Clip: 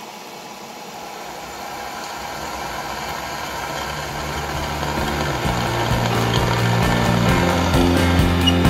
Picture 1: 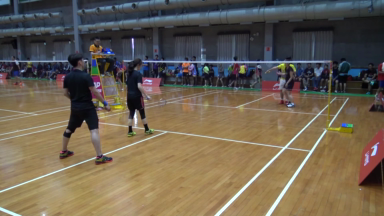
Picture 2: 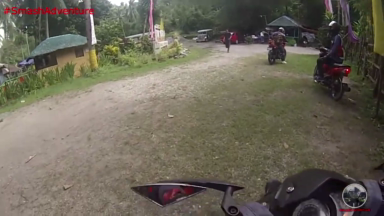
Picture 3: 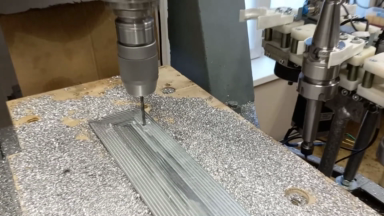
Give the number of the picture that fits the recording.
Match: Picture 3